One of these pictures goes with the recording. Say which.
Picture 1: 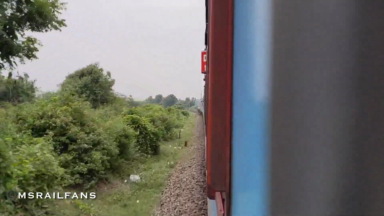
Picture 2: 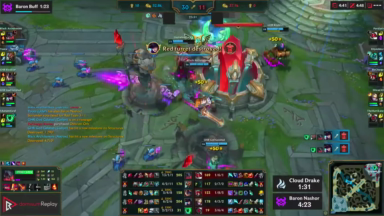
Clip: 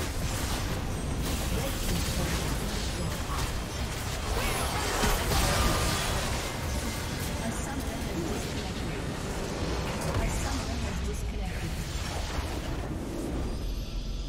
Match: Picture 2